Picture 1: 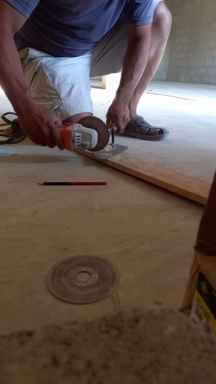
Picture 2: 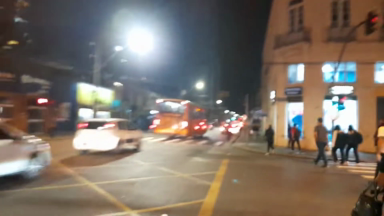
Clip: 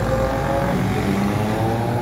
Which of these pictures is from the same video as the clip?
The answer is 2